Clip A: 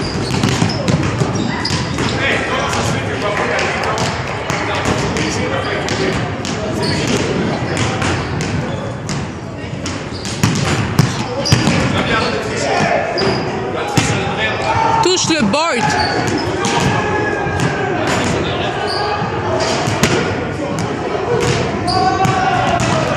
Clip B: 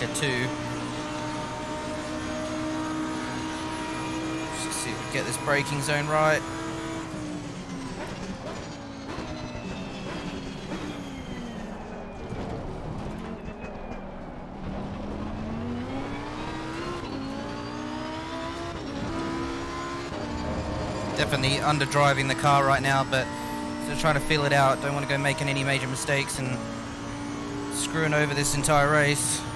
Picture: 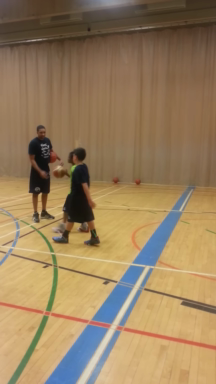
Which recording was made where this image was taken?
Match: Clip A